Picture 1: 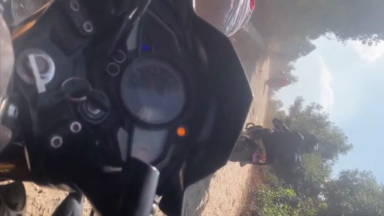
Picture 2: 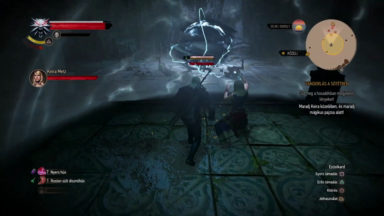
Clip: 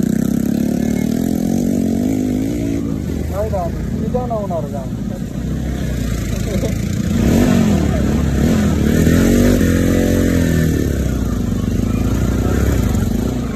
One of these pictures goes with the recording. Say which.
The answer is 1